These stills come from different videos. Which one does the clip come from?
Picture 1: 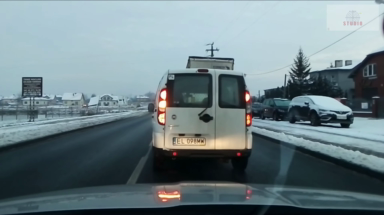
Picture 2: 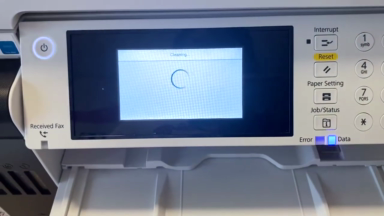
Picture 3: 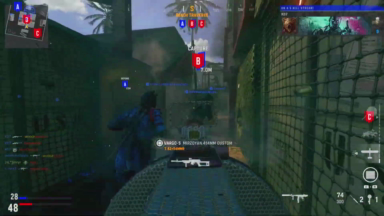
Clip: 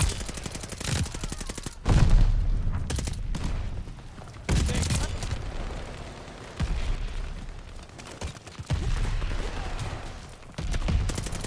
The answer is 3